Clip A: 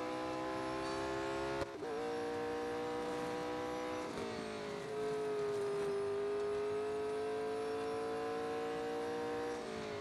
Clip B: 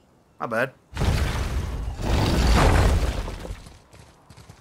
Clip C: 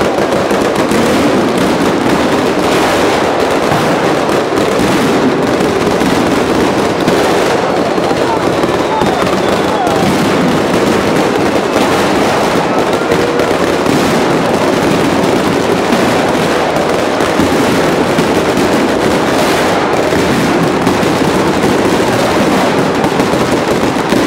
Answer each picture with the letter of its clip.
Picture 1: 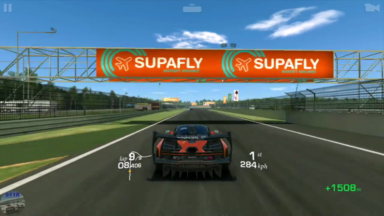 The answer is A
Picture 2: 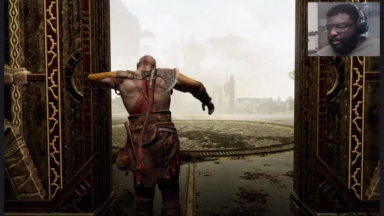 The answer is B